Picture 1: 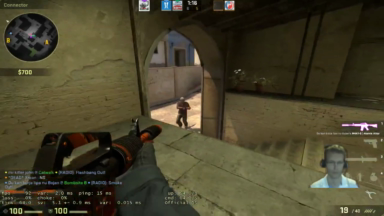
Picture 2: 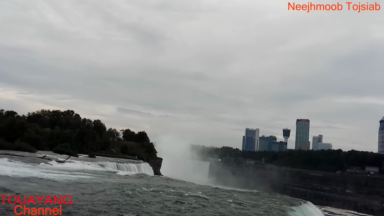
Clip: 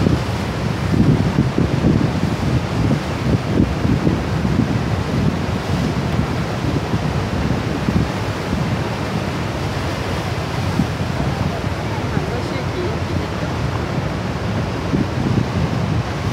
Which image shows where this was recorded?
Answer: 2